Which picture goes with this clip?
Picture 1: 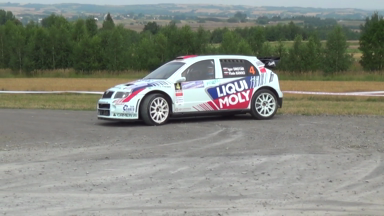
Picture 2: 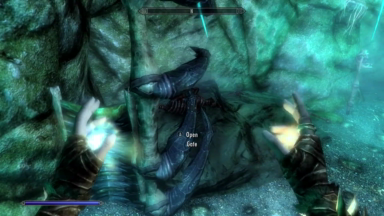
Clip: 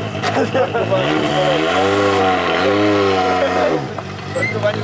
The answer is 1